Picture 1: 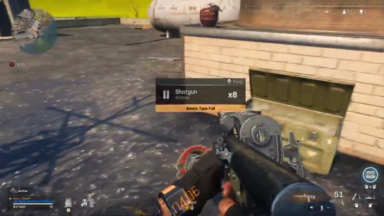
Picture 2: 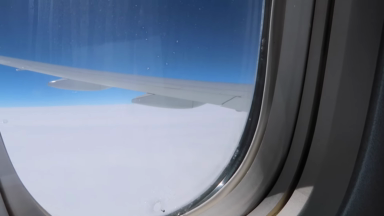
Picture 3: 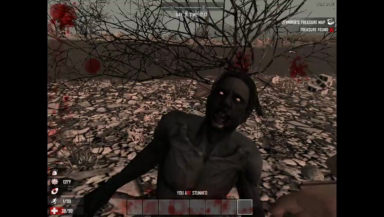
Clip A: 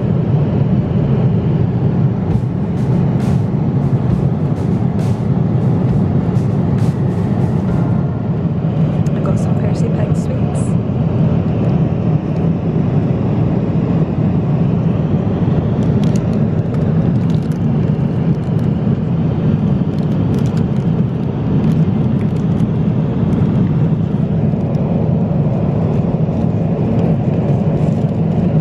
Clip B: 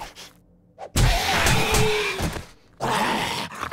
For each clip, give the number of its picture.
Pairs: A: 2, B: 3